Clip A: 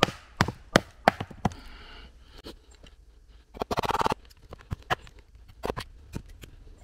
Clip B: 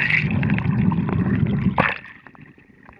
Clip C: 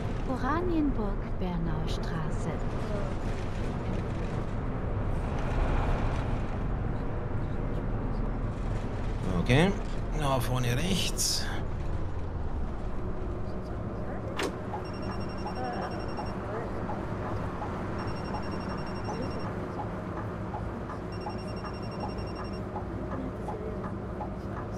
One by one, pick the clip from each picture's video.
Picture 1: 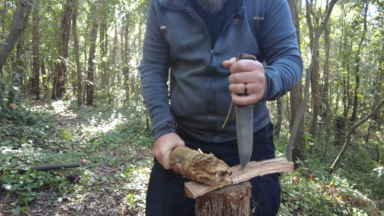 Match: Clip A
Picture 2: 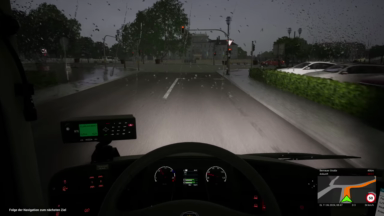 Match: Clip C